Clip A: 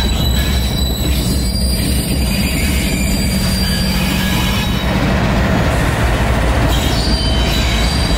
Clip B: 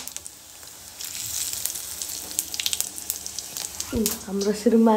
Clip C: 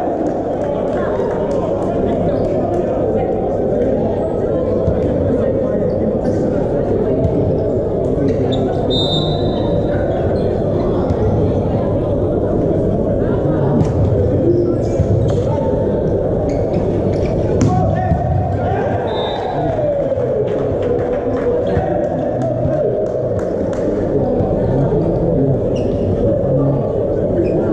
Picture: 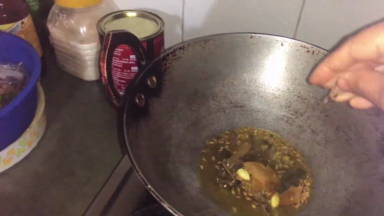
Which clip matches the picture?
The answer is B